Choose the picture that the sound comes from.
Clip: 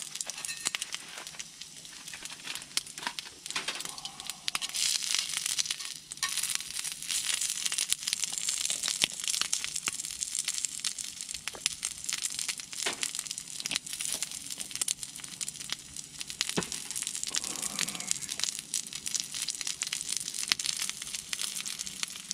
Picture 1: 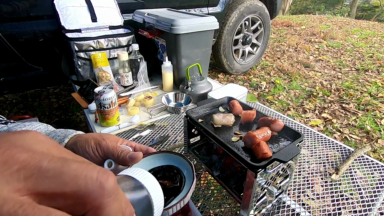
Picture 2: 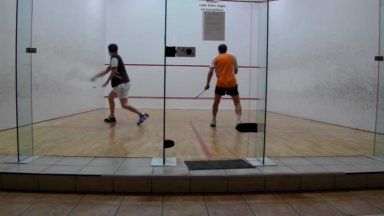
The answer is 1